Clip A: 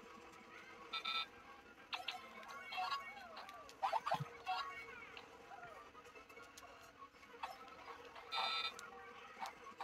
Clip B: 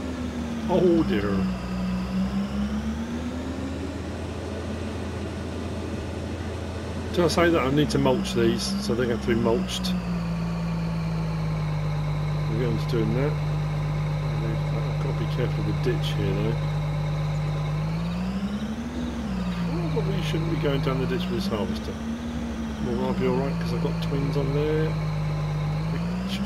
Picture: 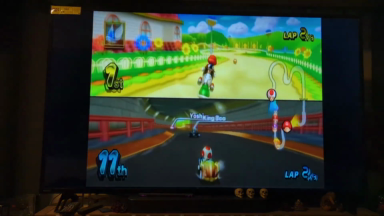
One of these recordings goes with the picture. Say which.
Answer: A